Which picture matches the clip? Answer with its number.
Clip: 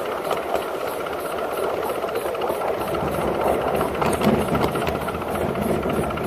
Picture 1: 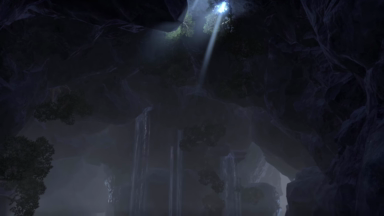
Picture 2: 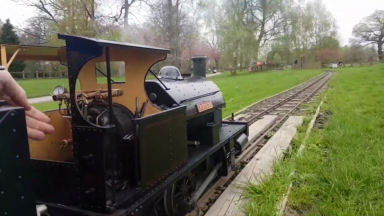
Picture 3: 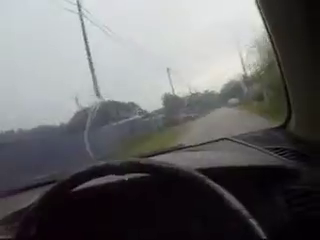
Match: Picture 2